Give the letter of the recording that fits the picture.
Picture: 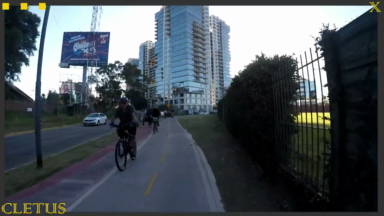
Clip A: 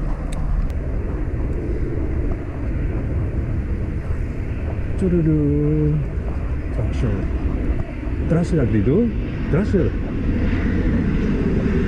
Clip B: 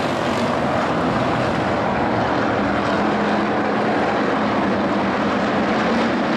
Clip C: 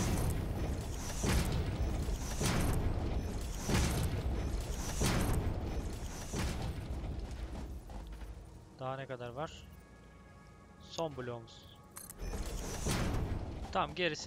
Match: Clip A